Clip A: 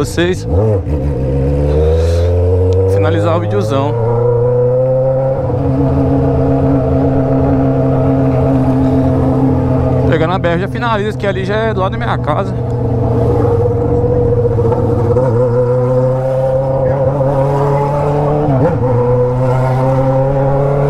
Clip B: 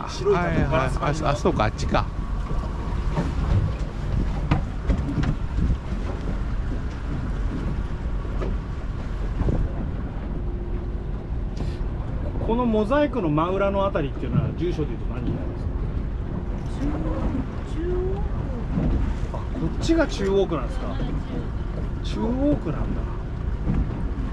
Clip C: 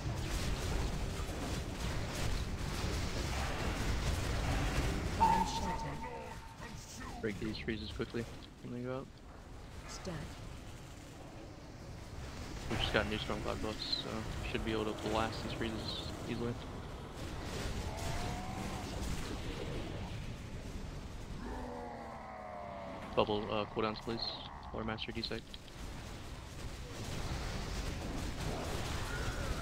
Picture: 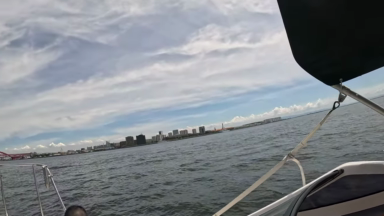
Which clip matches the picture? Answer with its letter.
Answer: B